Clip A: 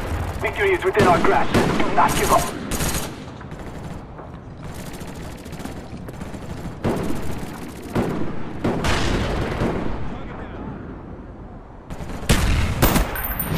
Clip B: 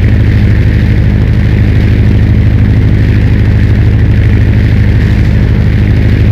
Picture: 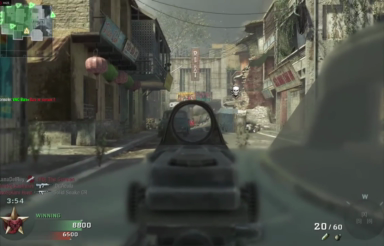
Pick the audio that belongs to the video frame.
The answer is A